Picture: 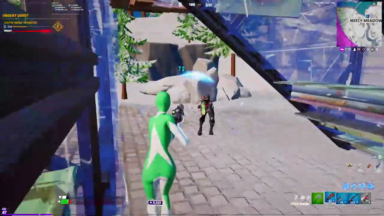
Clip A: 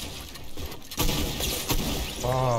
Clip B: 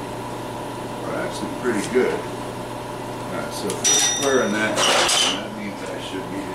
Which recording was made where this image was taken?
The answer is A